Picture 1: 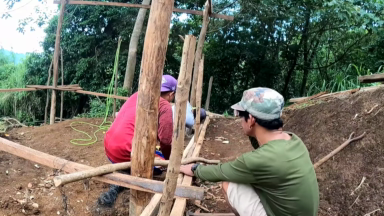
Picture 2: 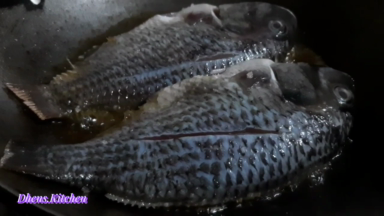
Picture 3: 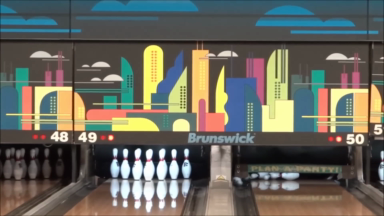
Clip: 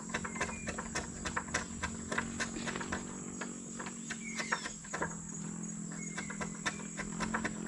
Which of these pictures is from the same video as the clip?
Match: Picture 1